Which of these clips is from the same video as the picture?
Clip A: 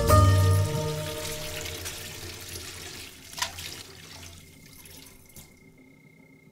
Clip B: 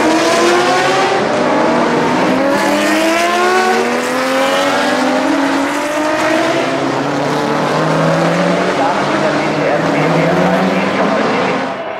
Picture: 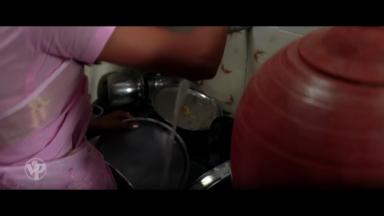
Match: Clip A